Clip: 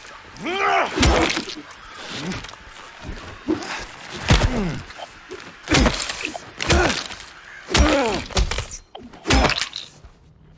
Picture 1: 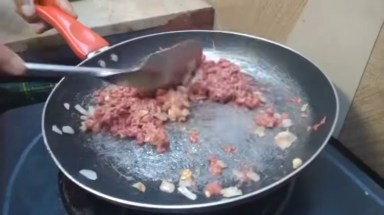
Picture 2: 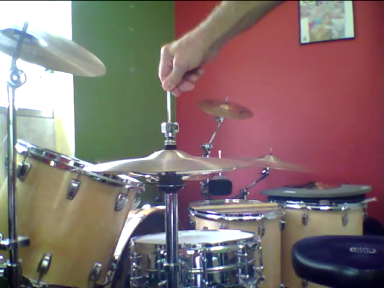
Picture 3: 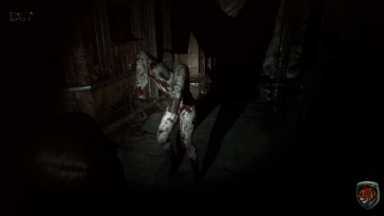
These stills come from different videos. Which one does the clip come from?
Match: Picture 3